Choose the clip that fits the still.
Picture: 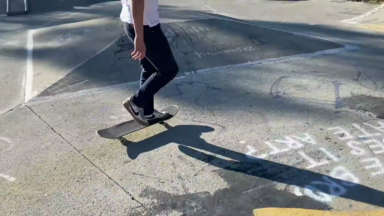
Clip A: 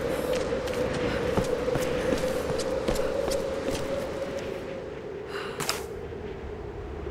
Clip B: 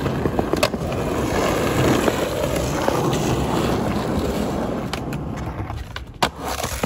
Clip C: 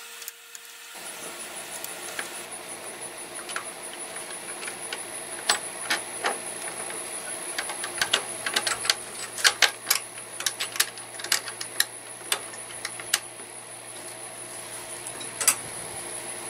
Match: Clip B